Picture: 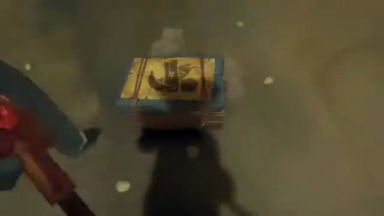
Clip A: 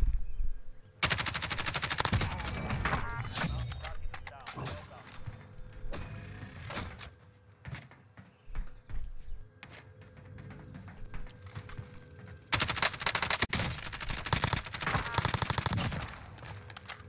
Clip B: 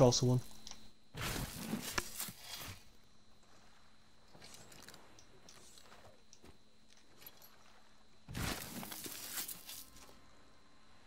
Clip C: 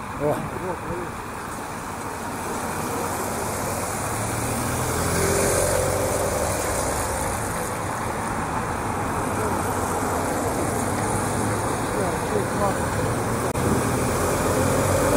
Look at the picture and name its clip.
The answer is B